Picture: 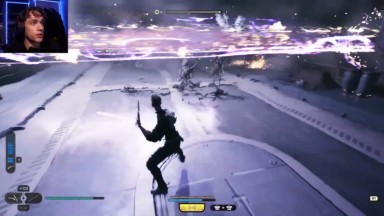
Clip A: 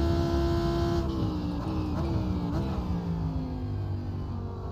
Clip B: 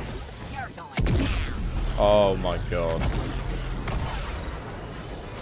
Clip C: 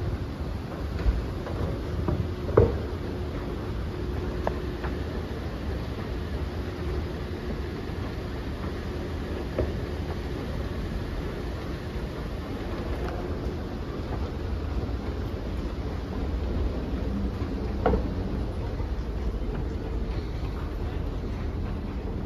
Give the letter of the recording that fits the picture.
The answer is B